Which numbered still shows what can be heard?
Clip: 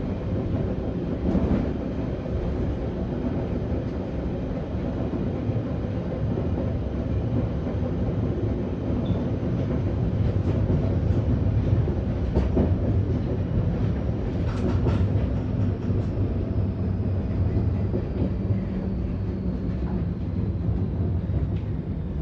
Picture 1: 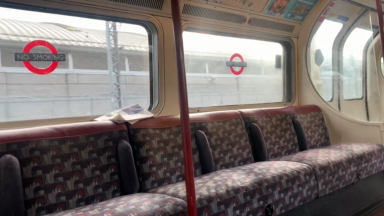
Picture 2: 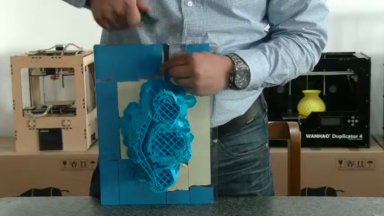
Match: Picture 1